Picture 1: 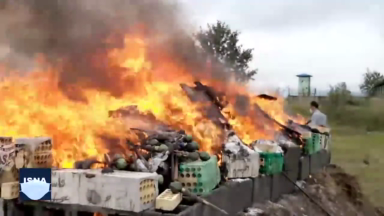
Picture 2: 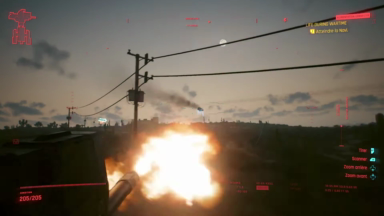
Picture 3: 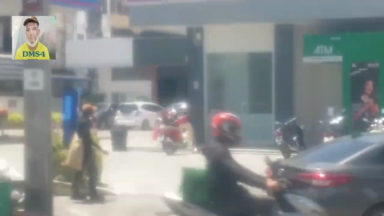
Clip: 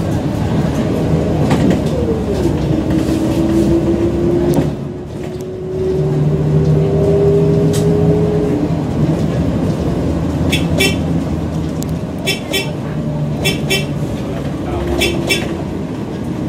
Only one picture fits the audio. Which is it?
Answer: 3